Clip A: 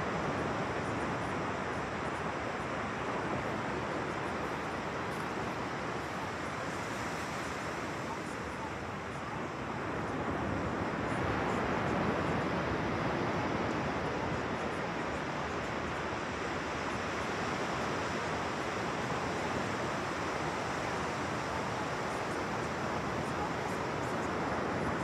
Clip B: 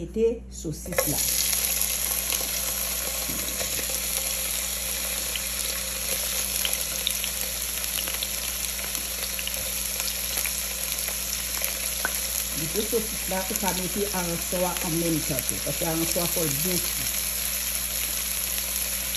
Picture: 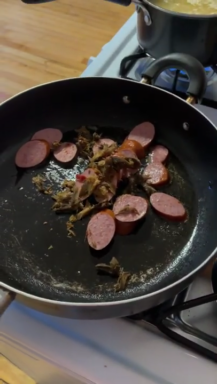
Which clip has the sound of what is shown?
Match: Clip B